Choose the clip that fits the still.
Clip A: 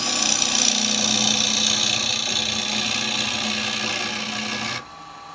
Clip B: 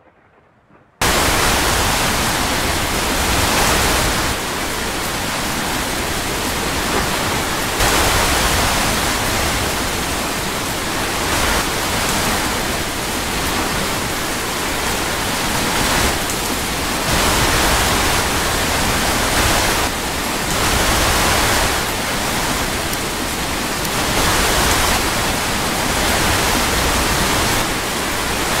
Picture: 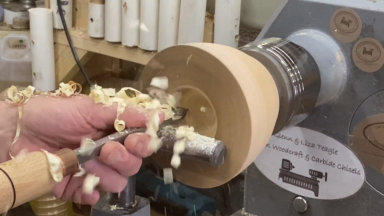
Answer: A